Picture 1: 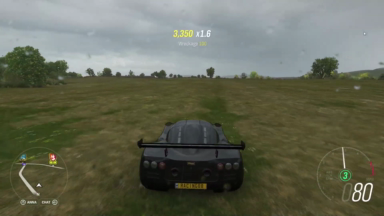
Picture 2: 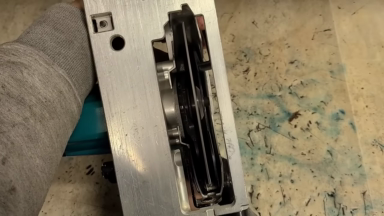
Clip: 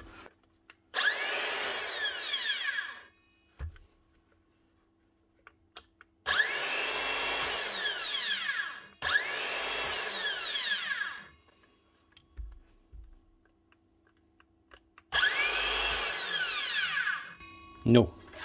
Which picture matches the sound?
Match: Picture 2